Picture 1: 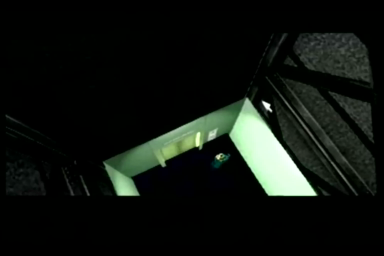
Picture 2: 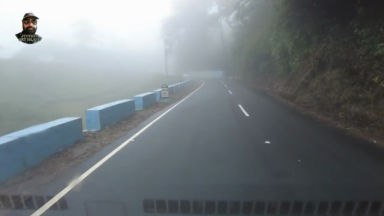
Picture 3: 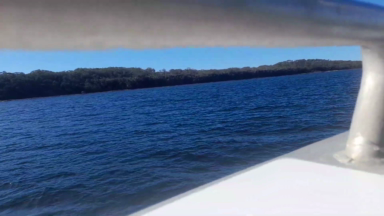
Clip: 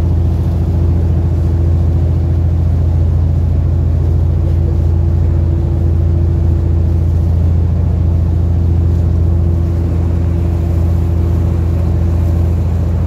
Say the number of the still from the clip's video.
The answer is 3